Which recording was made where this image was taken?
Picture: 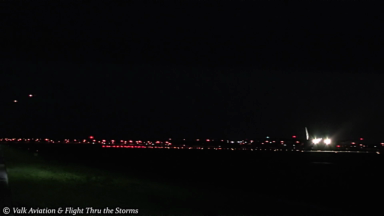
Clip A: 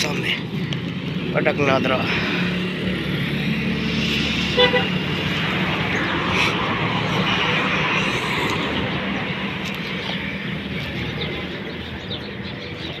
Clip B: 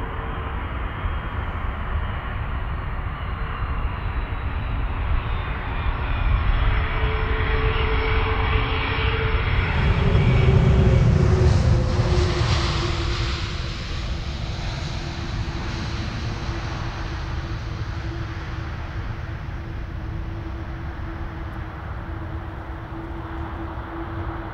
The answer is B